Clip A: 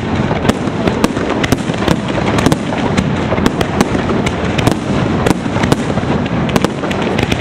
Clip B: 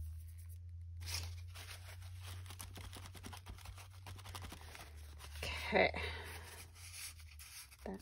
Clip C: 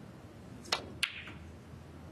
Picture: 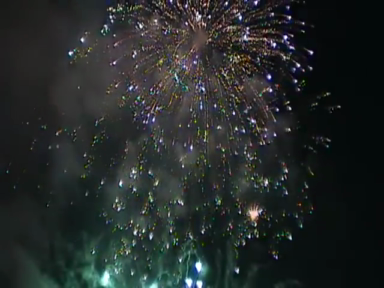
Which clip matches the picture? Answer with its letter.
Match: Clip A